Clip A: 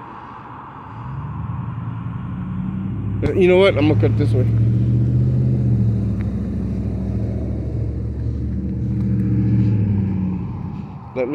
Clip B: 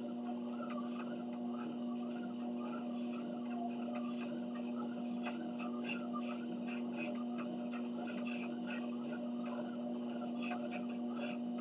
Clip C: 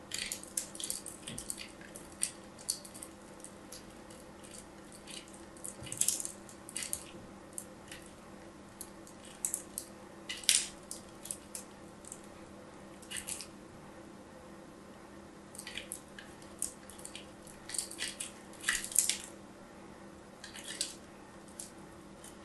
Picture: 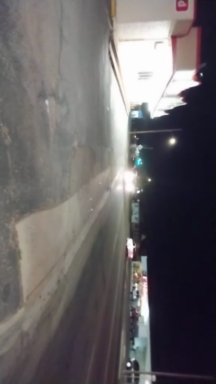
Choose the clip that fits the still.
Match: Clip A